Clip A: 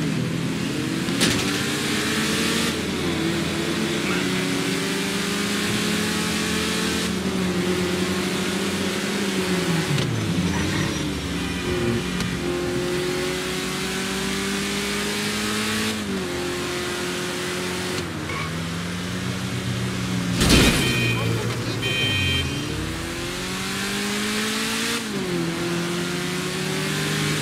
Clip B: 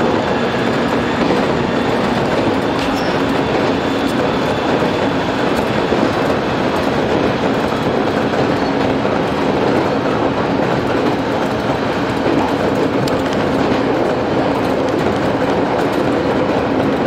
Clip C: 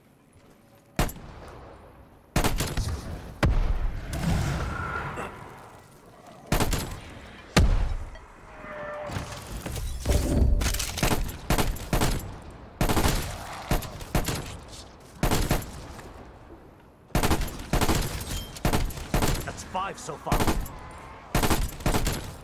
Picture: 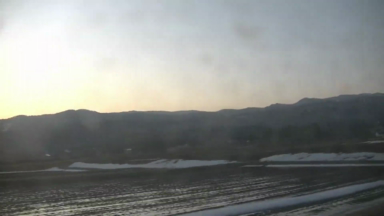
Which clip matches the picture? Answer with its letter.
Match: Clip B